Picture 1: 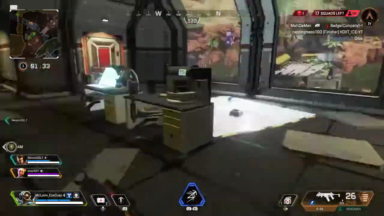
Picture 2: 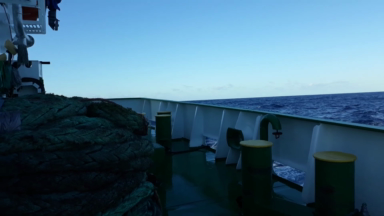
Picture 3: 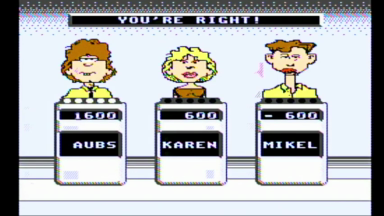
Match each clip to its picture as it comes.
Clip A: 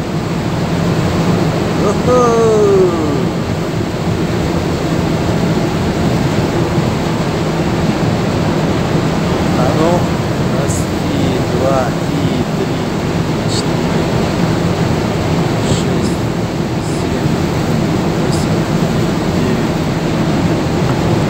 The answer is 2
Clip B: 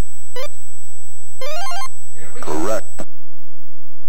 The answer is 3